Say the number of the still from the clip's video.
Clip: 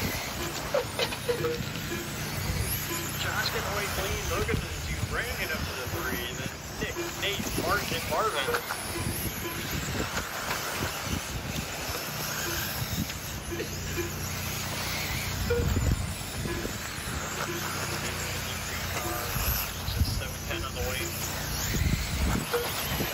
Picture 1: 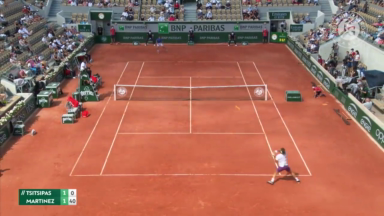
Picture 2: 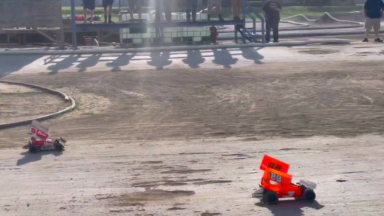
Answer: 2